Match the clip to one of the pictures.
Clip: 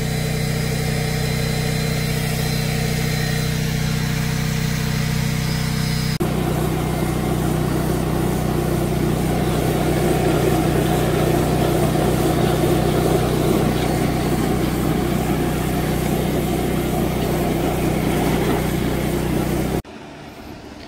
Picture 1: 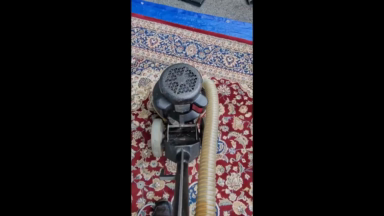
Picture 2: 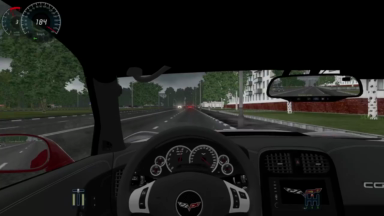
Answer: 1